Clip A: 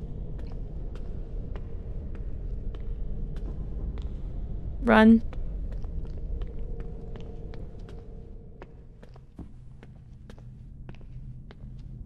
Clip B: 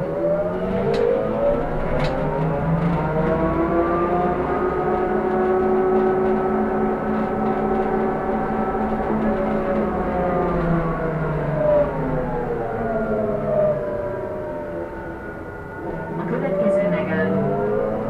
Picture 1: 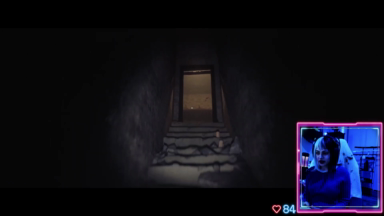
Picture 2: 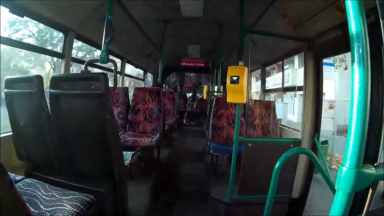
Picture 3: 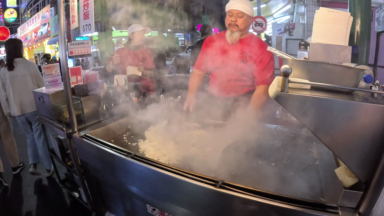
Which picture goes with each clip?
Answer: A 1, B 2